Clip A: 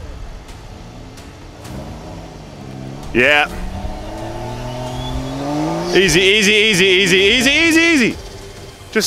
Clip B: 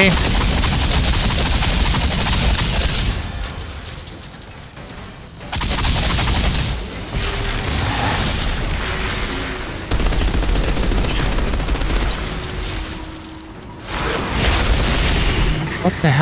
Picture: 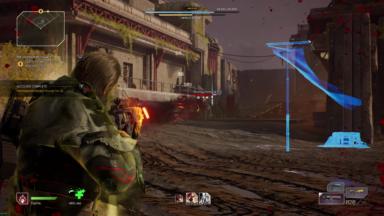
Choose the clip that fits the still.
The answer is B